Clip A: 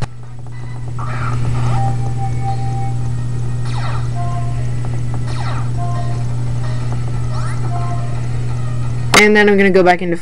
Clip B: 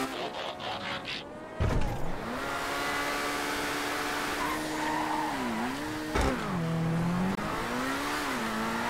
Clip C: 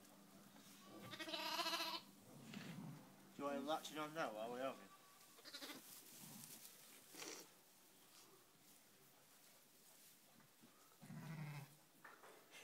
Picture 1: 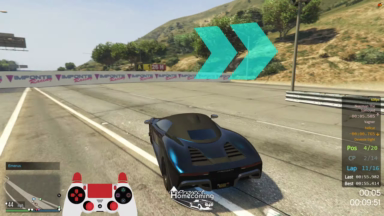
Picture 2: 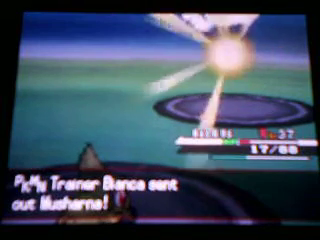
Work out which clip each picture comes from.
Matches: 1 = B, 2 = A